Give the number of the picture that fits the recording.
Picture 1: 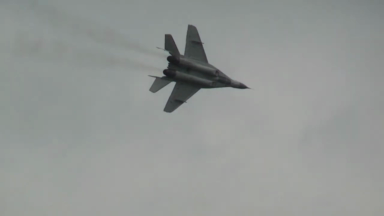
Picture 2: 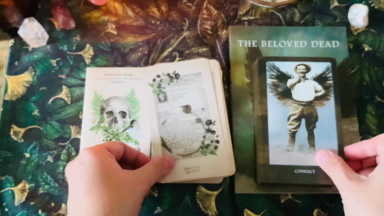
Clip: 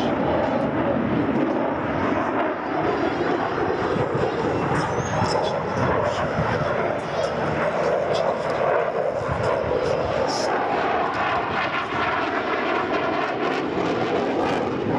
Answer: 1